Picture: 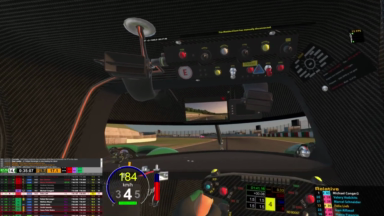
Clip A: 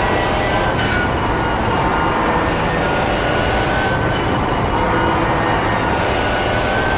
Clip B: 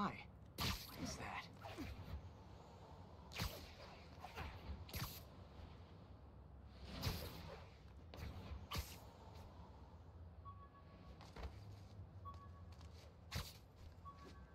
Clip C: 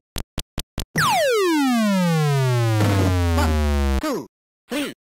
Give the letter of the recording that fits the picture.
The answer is A